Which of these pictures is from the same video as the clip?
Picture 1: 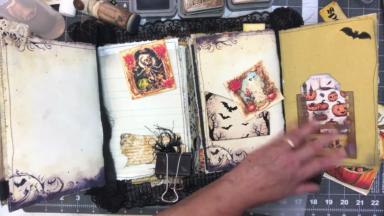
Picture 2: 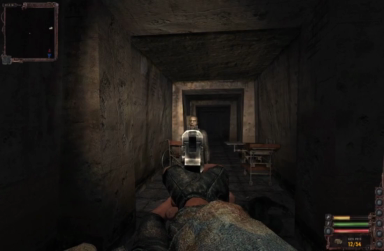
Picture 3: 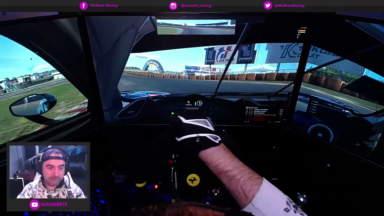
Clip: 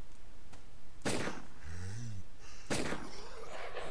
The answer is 2